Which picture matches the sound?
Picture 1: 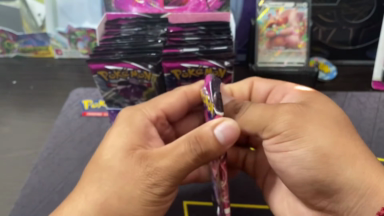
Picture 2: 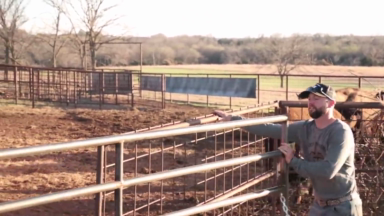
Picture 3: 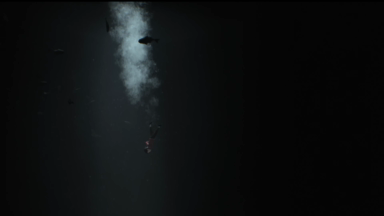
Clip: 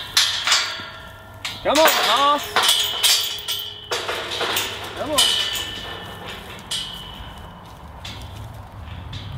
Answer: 2